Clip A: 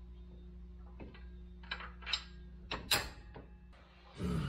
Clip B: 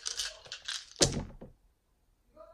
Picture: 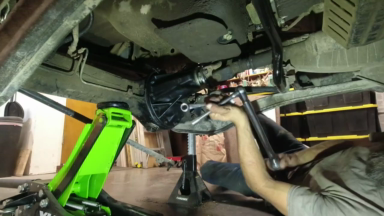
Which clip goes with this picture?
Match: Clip A